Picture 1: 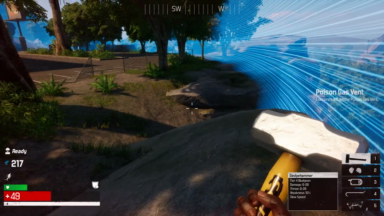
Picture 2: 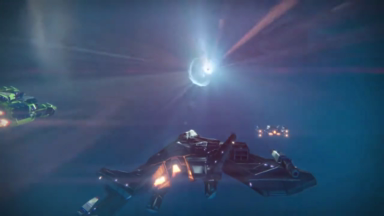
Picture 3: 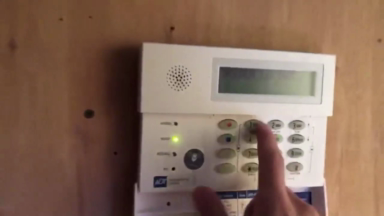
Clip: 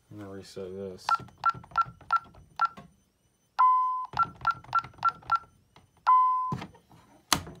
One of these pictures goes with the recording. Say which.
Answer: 3